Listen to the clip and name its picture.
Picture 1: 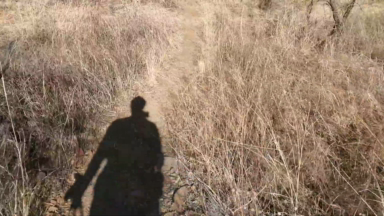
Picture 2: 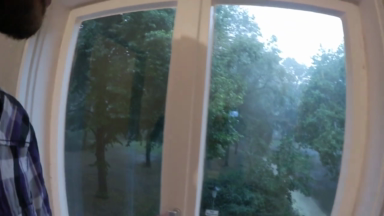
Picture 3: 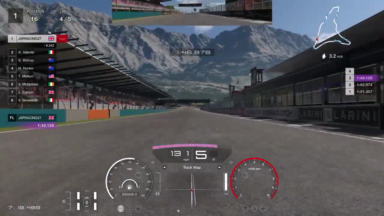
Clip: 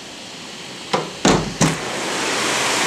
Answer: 2